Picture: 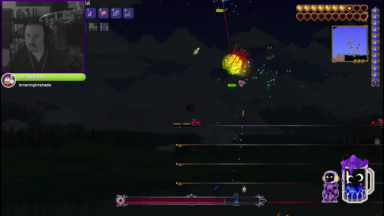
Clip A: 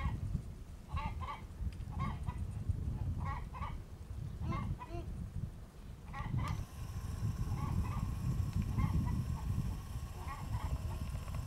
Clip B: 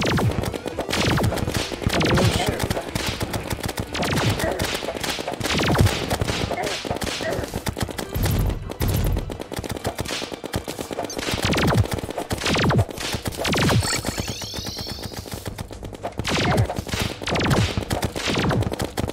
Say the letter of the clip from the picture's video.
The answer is B